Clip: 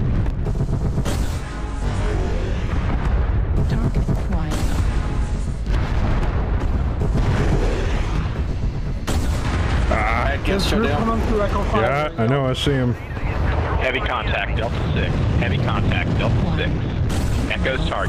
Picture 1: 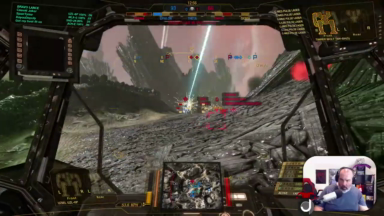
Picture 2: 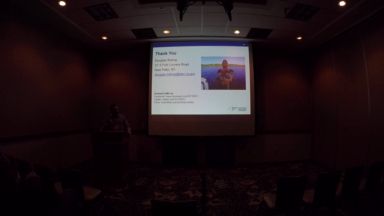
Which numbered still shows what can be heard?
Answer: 1